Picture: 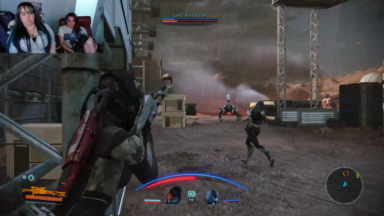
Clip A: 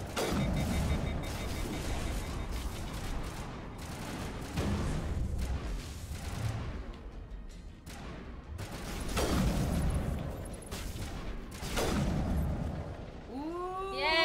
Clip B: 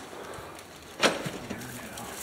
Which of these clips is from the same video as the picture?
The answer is A